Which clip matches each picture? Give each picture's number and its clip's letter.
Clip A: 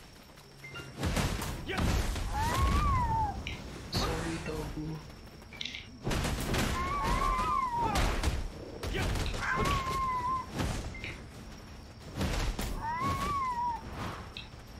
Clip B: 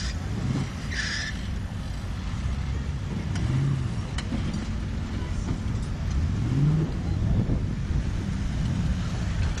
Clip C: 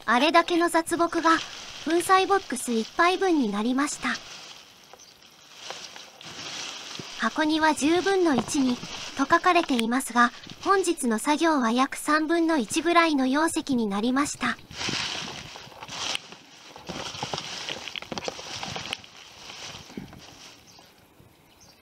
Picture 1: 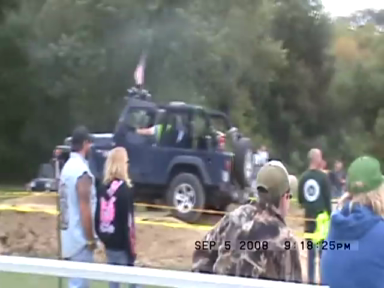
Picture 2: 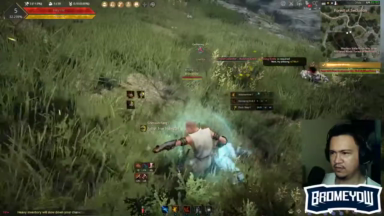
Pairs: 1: B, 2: A